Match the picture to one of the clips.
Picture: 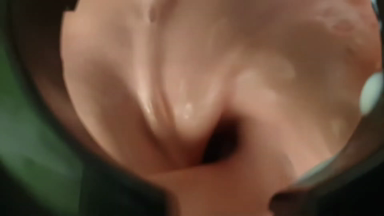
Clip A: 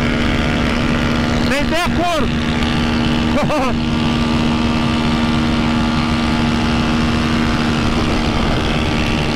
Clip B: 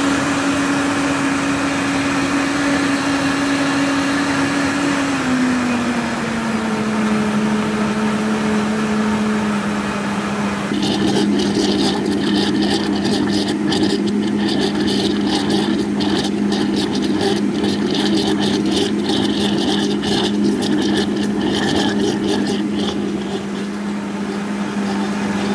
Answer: B